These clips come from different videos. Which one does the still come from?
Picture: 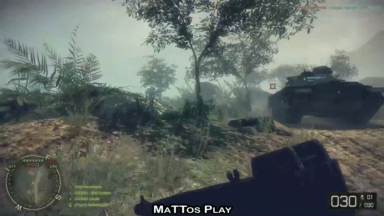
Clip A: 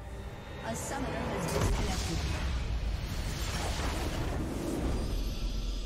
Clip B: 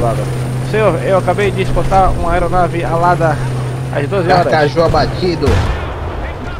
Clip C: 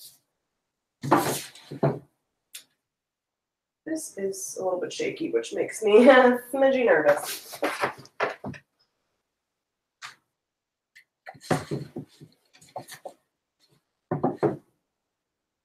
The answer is B